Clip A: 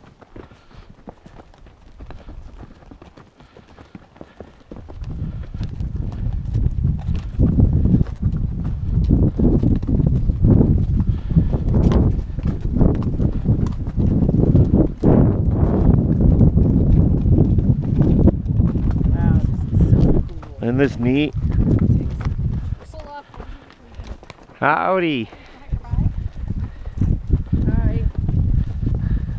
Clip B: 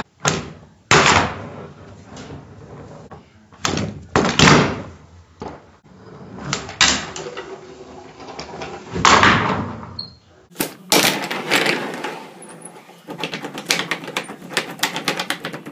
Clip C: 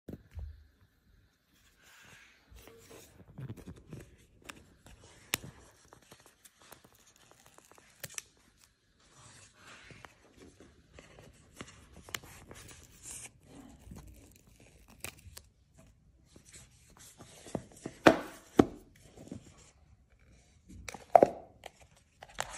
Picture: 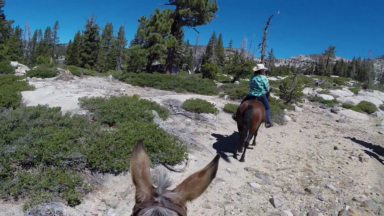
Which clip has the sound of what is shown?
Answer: A